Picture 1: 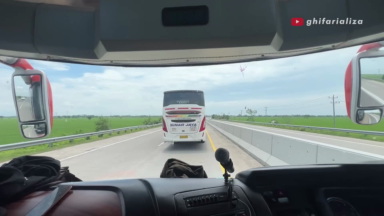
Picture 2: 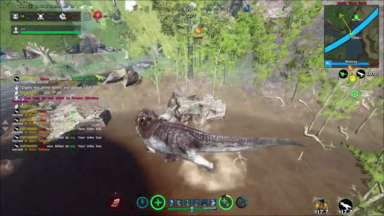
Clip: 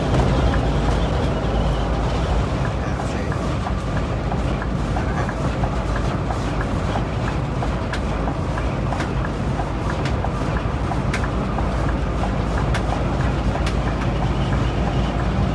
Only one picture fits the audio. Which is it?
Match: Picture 1